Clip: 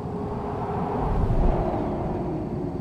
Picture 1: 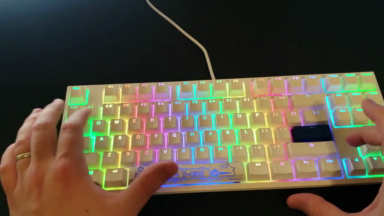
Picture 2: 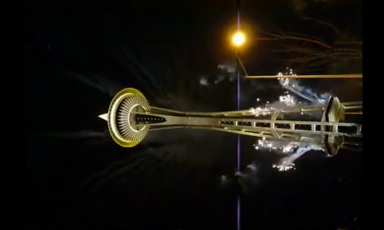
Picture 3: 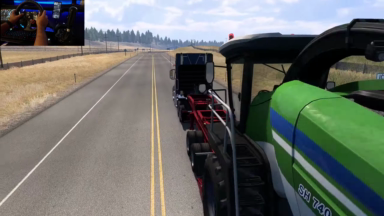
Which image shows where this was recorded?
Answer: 3